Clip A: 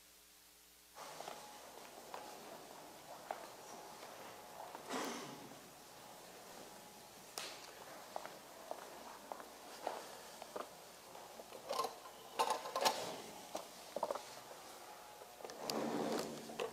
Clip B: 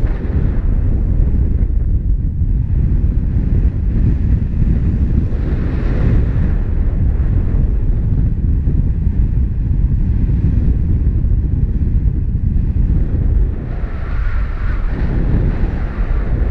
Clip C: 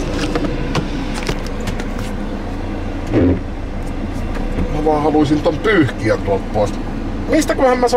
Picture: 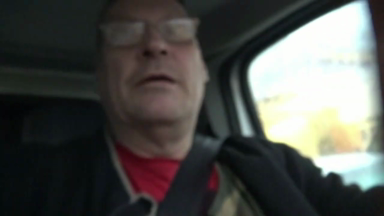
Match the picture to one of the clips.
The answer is C